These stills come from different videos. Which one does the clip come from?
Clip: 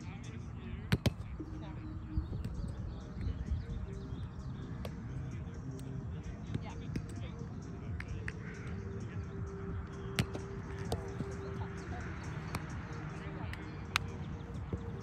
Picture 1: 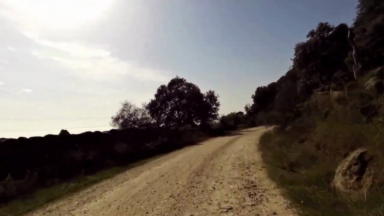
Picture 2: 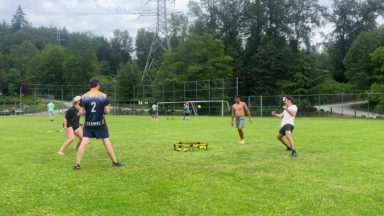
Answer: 2